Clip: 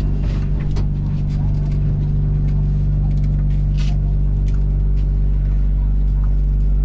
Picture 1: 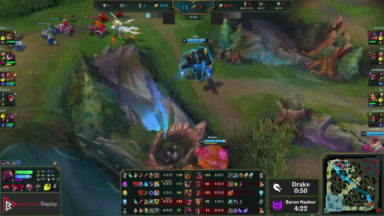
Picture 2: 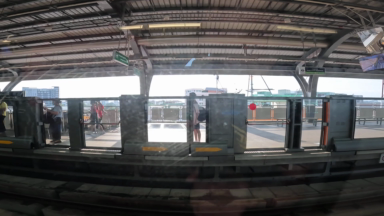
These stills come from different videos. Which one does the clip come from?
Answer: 2